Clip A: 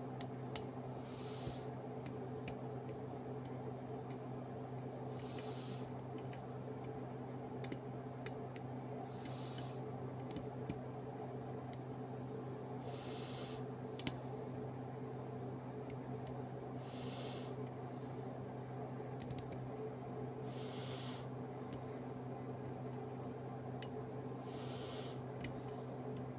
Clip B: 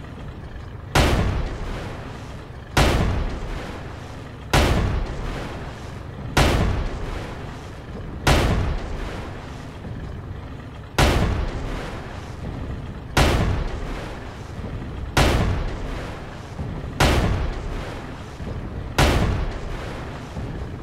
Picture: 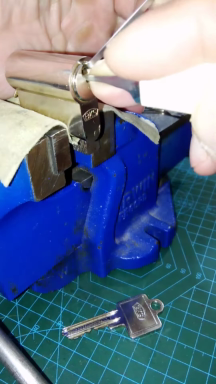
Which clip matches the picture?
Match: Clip A